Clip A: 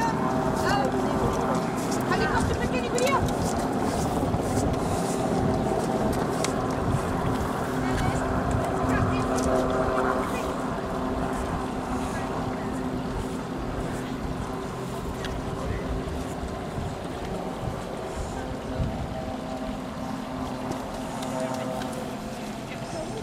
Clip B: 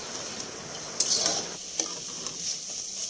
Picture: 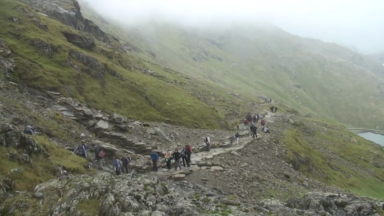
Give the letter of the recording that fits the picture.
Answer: A